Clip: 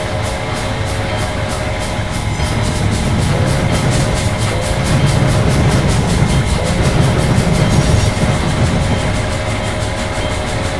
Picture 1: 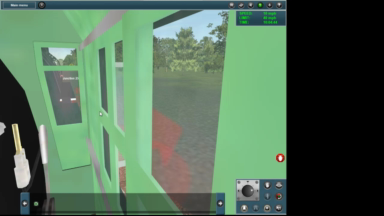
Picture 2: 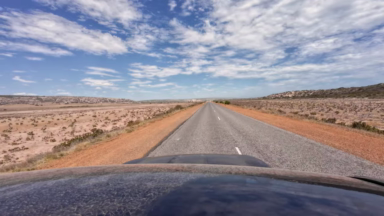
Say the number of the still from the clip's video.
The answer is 1